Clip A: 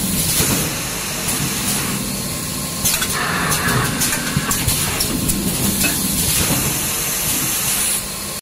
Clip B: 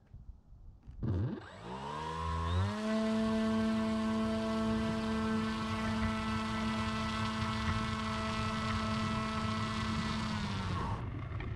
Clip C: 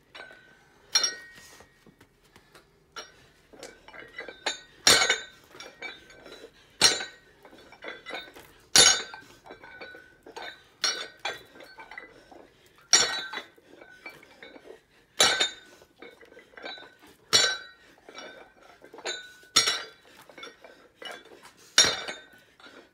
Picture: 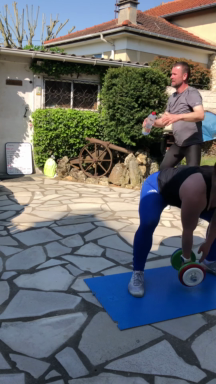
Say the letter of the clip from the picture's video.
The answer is C